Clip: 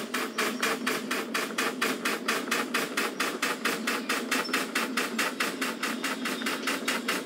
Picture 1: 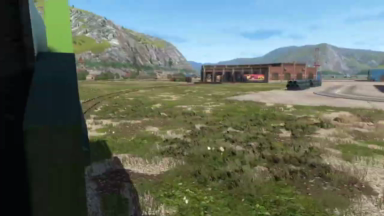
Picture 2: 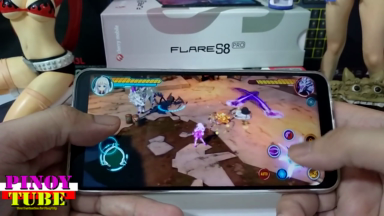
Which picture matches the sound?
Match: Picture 1